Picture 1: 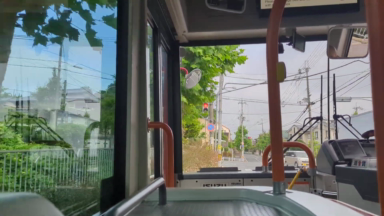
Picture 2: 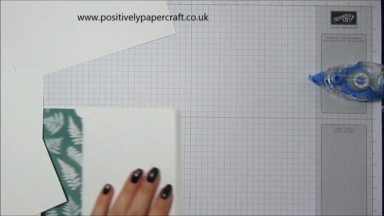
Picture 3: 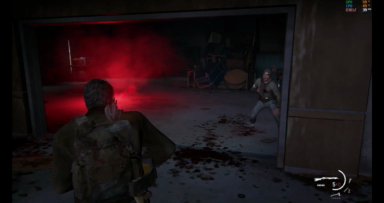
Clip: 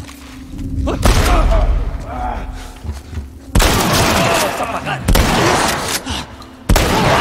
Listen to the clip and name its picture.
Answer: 3